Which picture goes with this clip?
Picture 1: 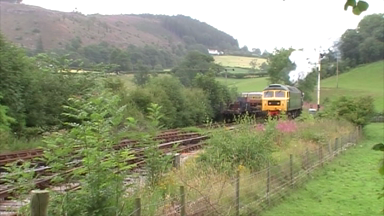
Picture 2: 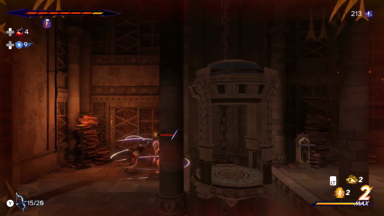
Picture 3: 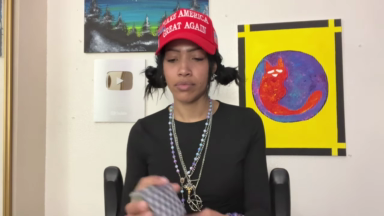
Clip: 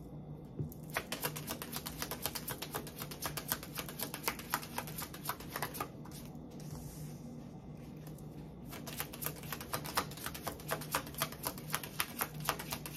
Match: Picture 3